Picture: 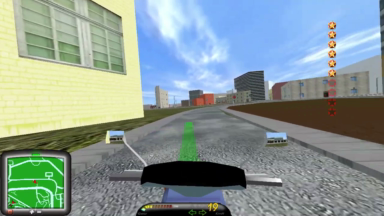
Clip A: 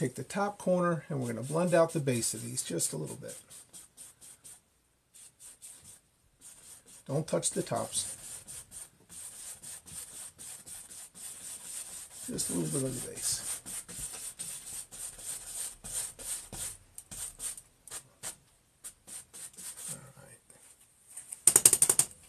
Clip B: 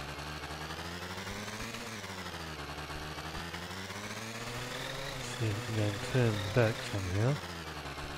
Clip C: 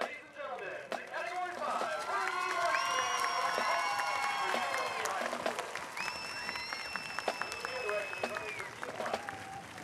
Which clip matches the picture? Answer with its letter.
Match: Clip B